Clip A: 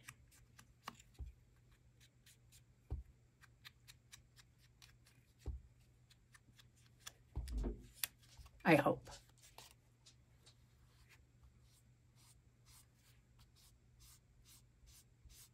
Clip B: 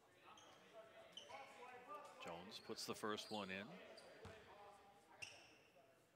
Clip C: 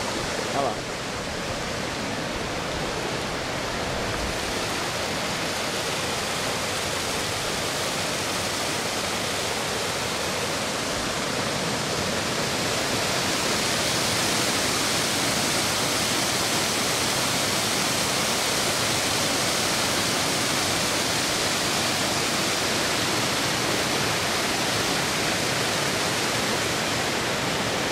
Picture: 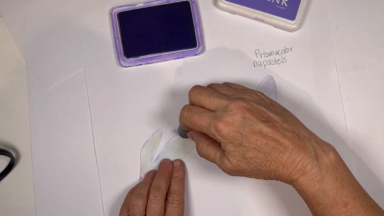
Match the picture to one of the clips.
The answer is A